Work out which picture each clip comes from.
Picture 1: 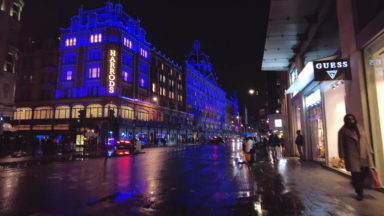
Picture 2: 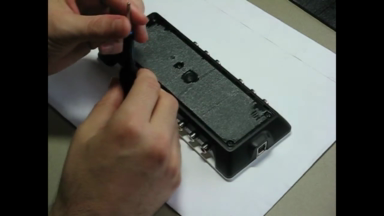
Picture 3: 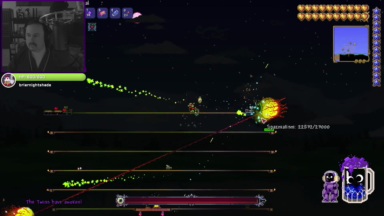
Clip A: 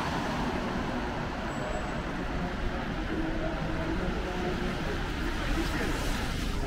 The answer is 1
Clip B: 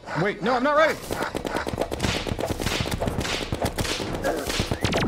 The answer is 3